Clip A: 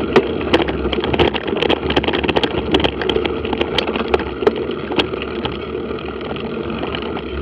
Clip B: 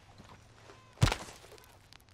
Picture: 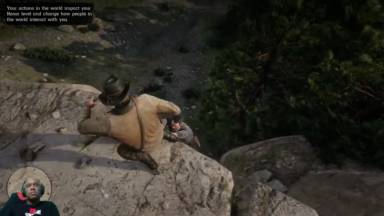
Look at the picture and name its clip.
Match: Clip B